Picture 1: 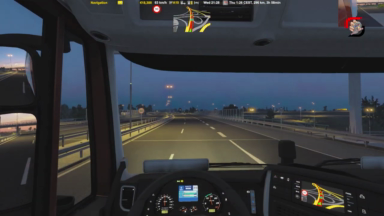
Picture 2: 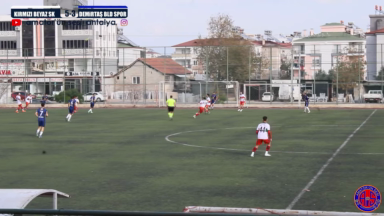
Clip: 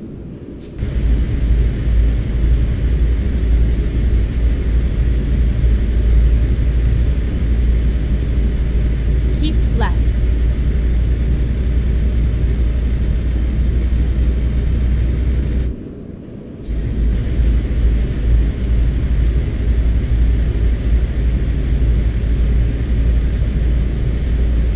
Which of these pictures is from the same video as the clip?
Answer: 1